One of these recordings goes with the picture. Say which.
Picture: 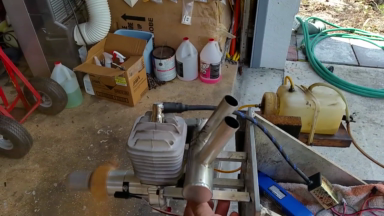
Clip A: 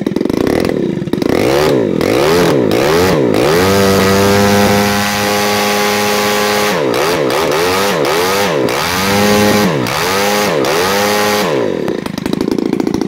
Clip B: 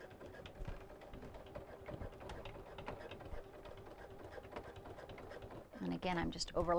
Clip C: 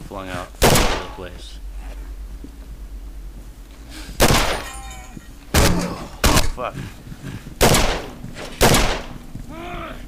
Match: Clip A